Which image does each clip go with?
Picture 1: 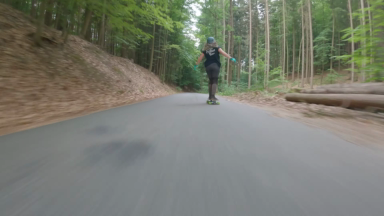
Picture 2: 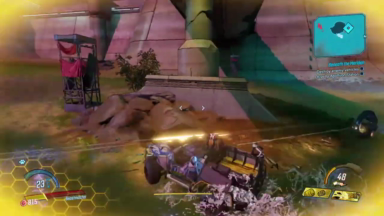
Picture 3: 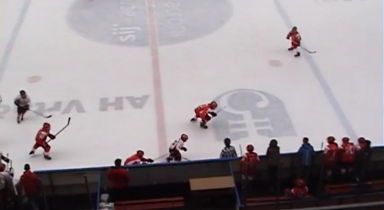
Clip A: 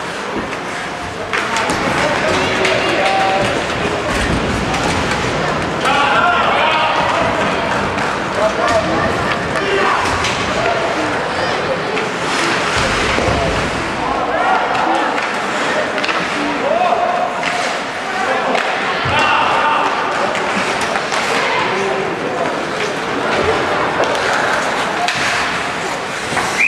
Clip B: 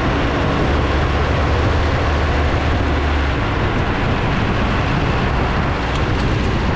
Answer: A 3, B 1